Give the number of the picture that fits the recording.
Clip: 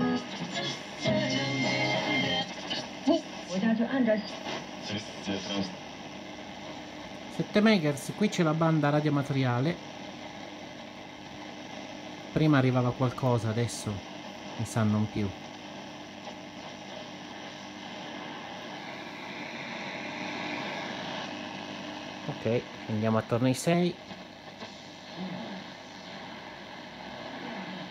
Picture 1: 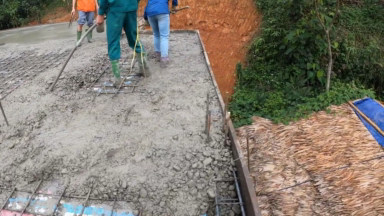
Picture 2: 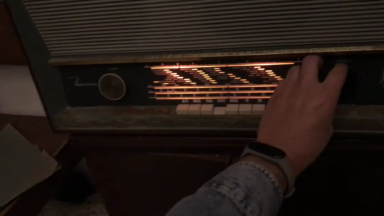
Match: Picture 2